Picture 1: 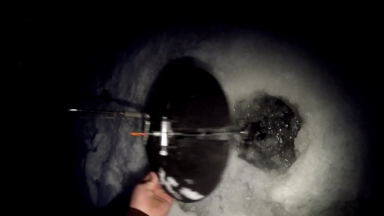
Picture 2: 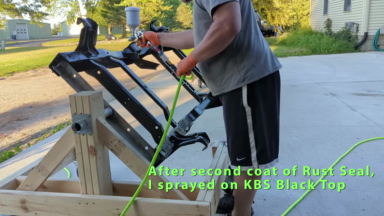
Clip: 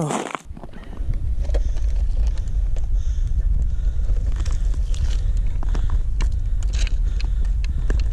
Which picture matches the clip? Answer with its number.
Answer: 1